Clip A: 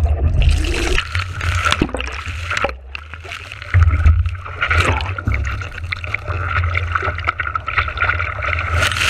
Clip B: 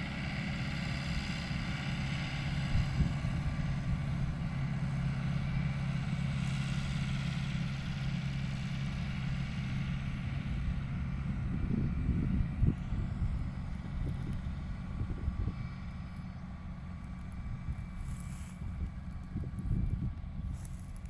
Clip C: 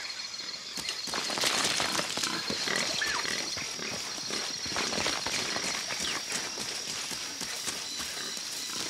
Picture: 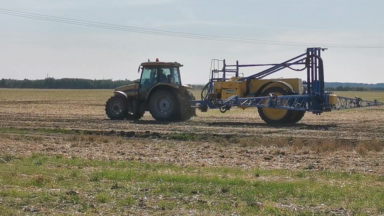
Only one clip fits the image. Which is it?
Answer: B